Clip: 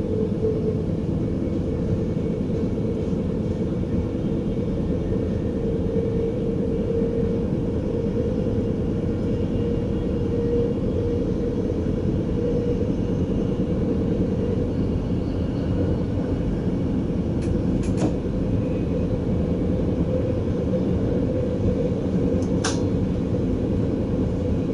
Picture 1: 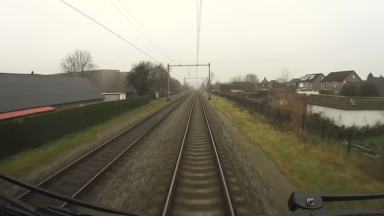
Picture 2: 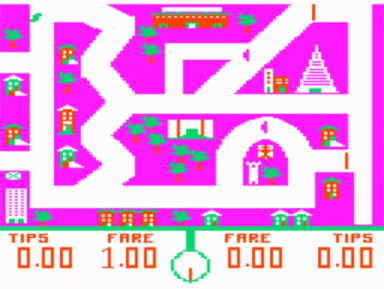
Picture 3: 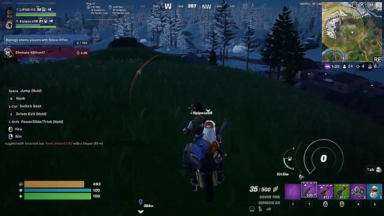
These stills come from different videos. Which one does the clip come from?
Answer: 1